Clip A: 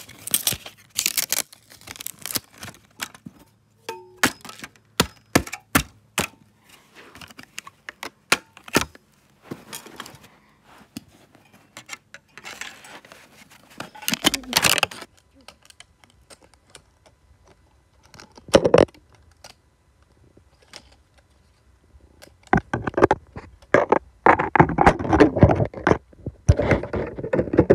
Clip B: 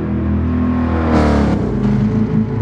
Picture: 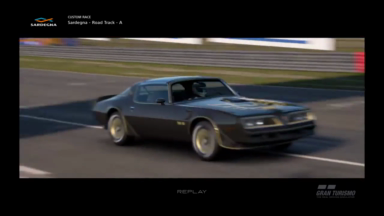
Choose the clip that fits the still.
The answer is B